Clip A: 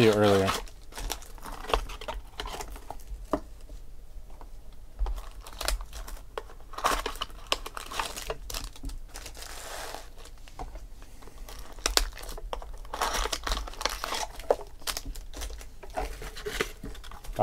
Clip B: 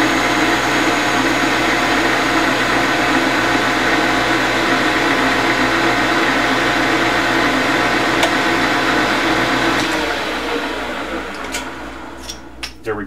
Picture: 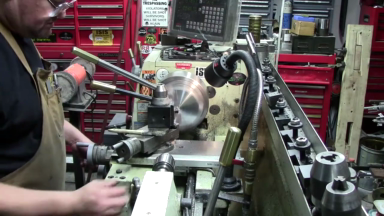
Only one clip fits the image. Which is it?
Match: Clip B